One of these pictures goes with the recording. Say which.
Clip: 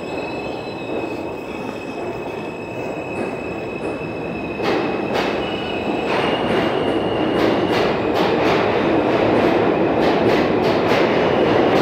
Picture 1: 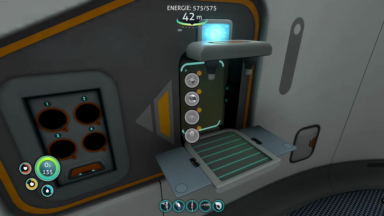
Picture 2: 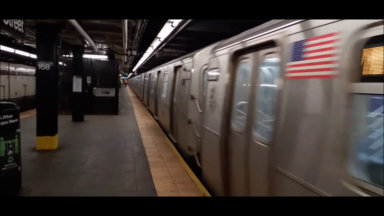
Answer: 2